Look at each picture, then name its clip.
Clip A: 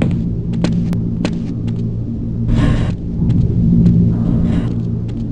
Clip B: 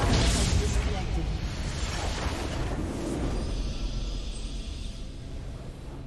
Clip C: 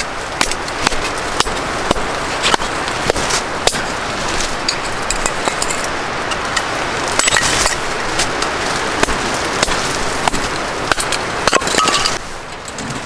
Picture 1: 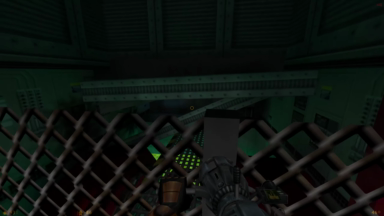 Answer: A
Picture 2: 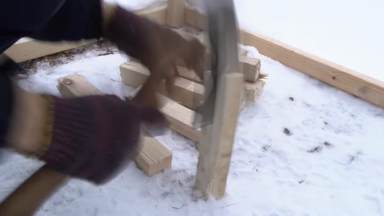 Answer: C